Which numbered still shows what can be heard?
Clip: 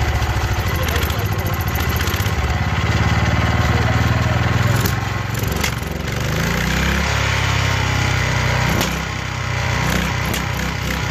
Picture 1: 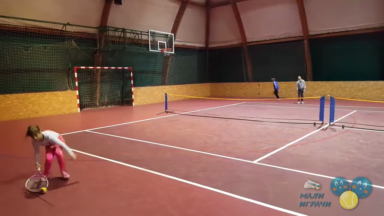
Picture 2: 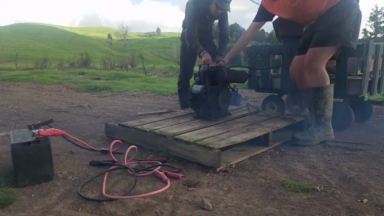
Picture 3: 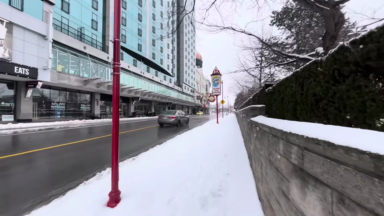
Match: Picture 2